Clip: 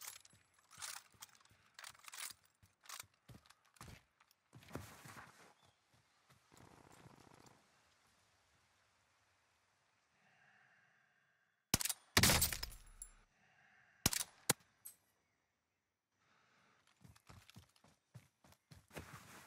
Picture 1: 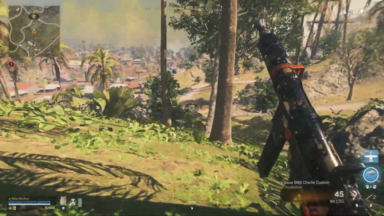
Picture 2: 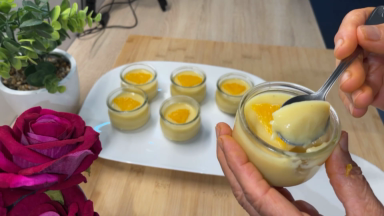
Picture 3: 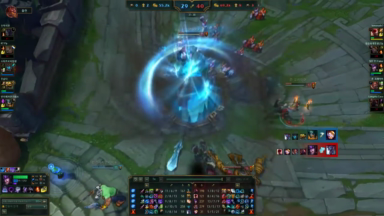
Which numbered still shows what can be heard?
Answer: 1